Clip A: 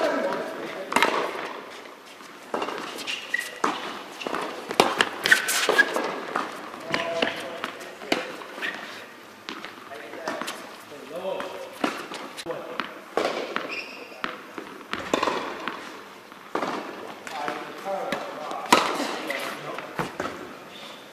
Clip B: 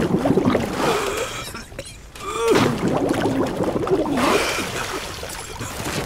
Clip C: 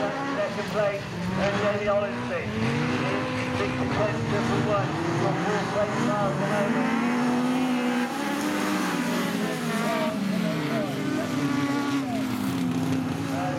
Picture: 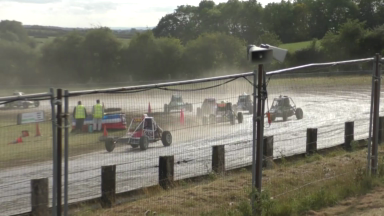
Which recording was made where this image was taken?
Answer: C